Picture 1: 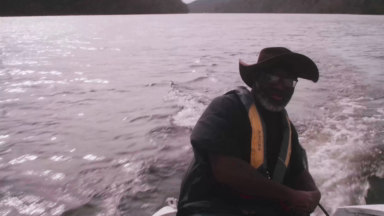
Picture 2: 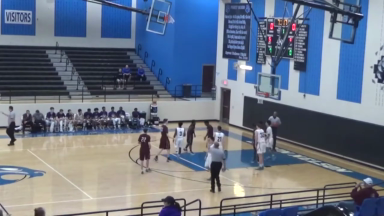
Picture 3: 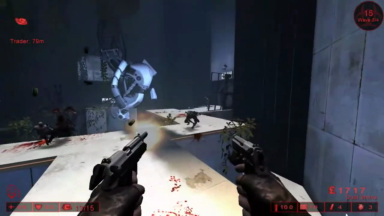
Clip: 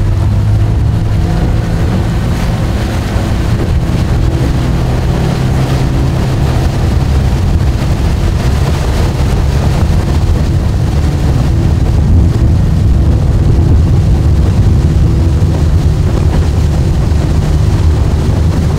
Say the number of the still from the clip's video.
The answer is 1